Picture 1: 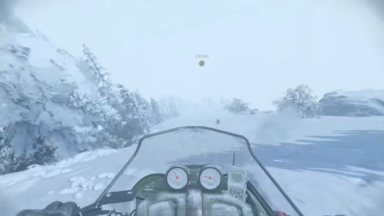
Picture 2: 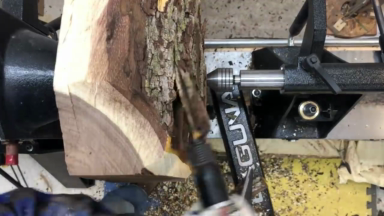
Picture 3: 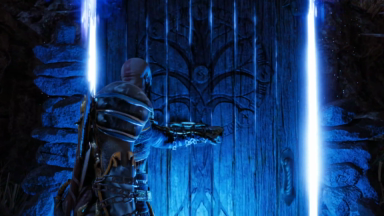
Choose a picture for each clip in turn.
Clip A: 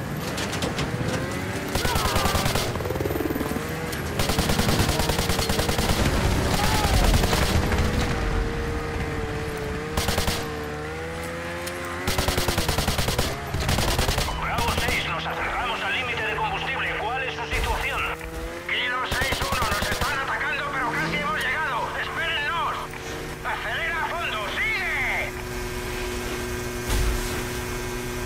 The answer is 1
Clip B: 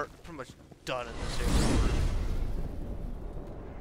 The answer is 3